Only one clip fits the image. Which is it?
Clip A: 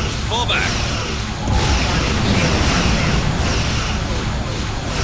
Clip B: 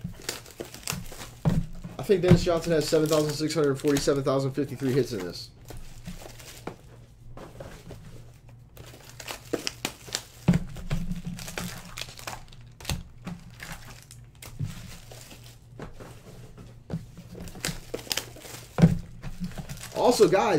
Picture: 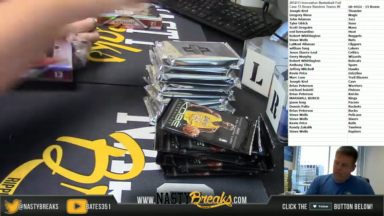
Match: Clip B